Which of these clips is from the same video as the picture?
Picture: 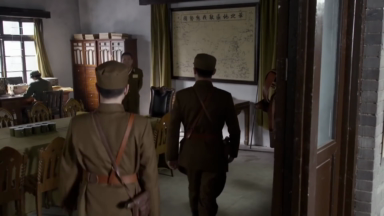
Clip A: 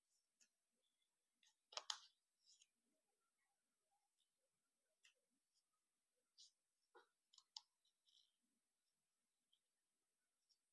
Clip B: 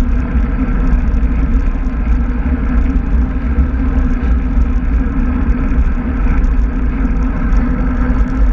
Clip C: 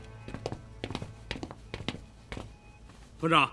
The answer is C